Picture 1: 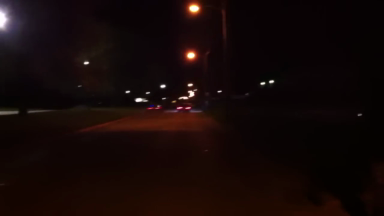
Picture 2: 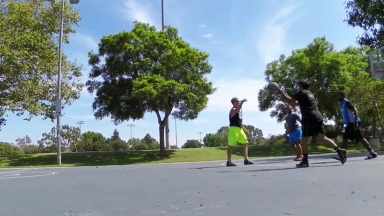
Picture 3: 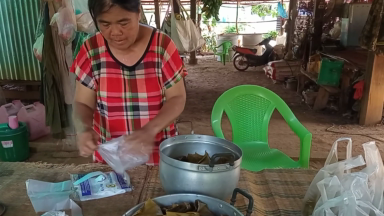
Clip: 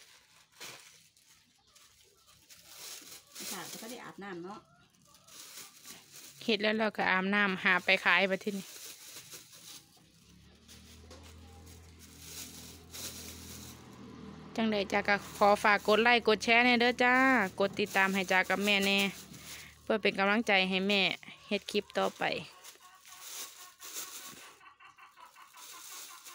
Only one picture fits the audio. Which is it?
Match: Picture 3